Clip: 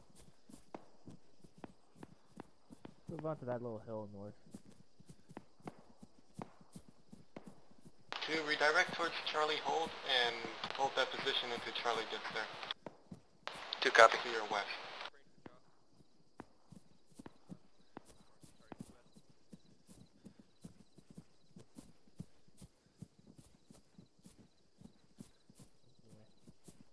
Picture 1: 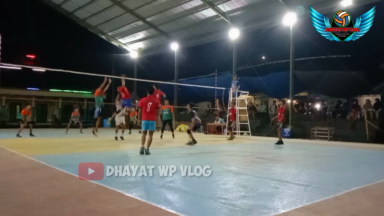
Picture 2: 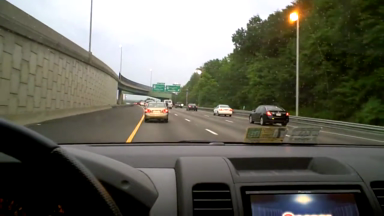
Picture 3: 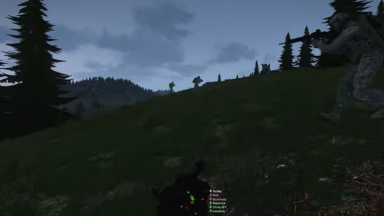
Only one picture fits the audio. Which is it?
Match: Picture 3